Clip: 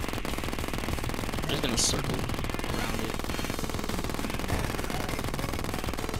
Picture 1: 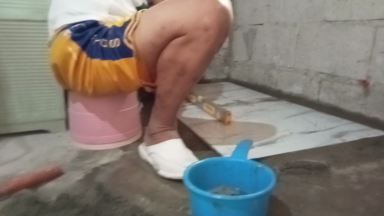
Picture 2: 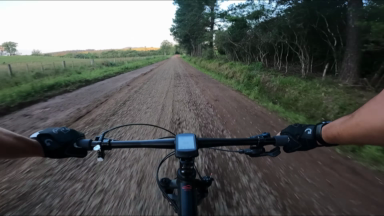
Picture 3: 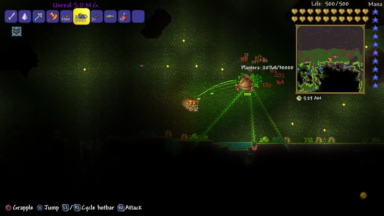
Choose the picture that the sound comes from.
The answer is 3